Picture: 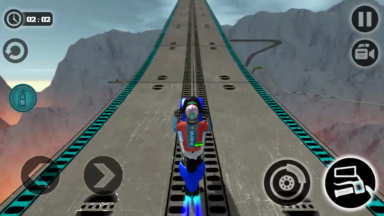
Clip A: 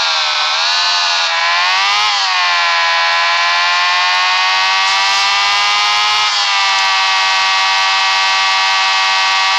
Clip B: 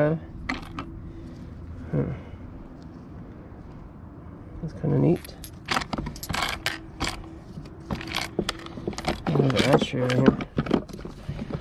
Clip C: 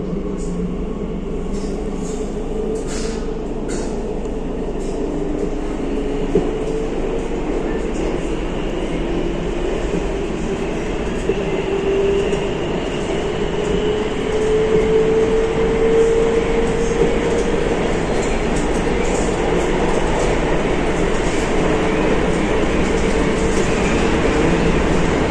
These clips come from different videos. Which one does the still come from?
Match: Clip A